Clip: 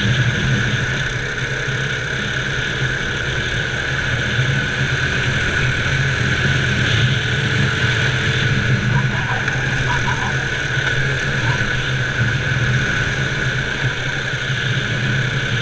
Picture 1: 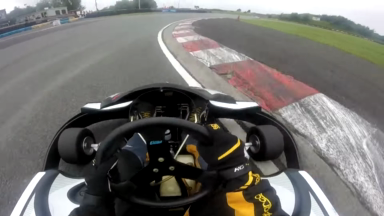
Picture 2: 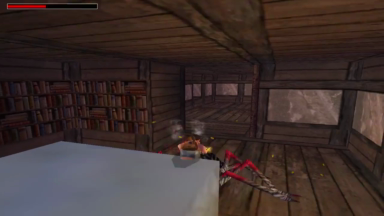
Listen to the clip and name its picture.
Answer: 1